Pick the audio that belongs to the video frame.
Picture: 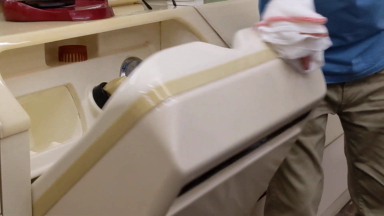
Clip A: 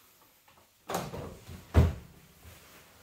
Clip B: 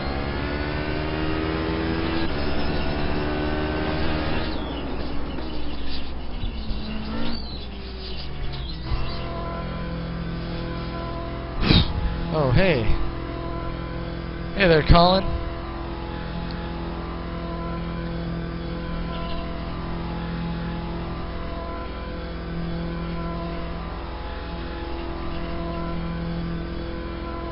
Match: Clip A